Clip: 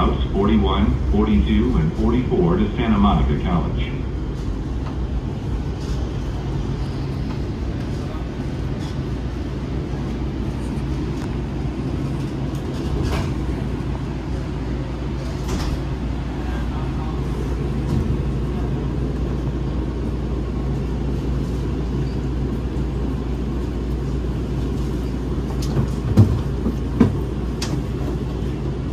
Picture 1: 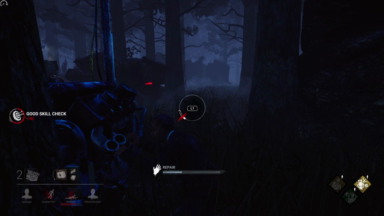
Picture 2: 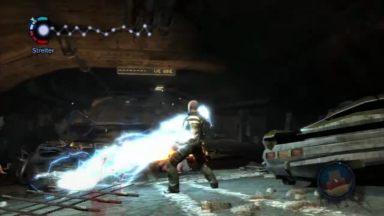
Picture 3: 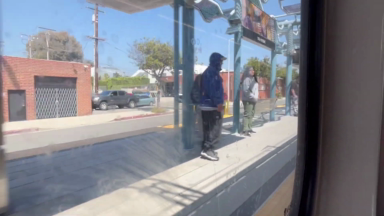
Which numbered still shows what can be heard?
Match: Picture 3